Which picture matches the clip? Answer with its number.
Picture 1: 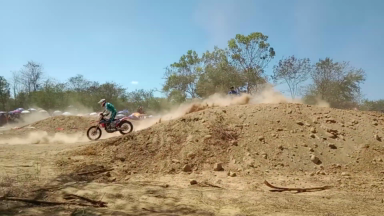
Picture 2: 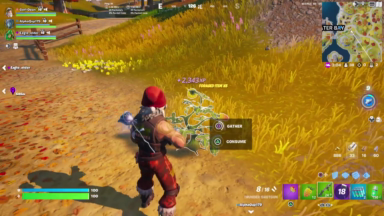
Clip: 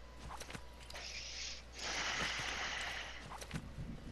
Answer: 2